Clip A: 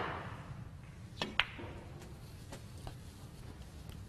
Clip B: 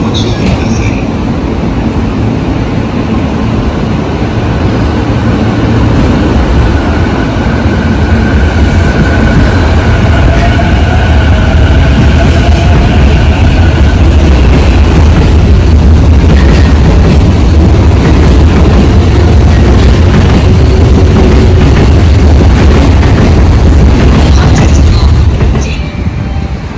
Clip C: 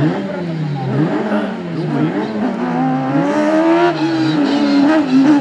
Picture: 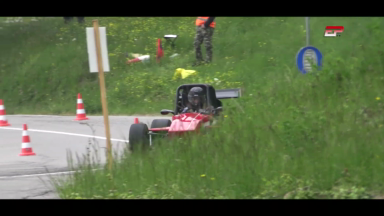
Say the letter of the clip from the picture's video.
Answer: C